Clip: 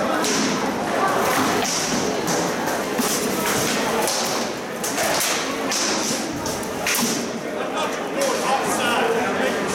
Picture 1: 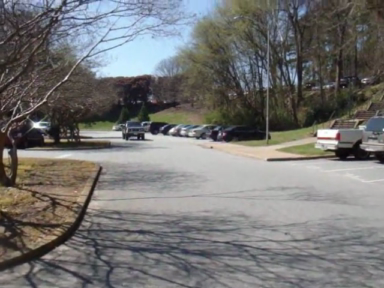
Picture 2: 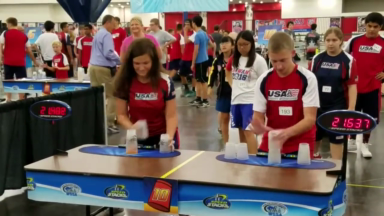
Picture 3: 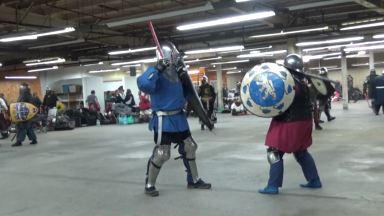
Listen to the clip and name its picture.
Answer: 3